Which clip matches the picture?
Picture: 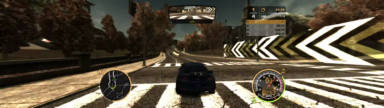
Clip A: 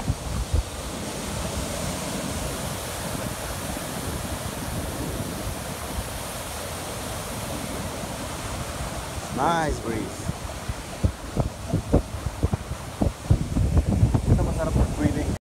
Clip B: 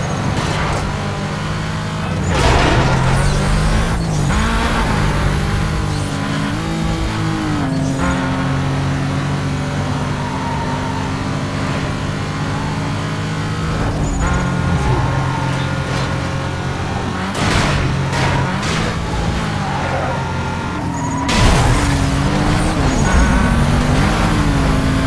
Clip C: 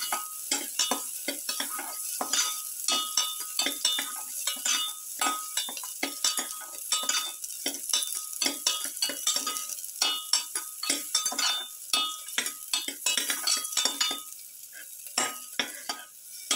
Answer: B